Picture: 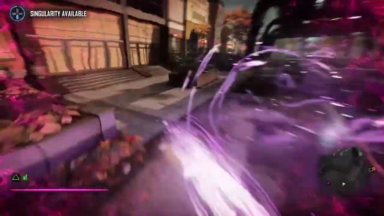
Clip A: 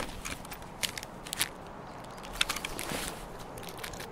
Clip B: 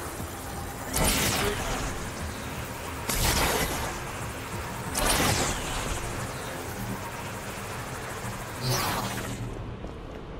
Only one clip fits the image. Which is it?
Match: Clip B